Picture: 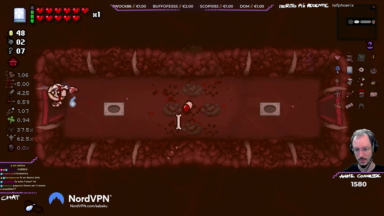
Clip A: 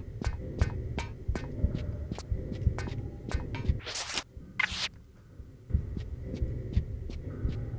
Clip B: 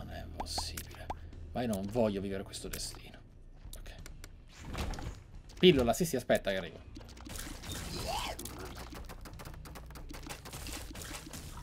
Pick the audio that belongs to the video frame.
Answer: B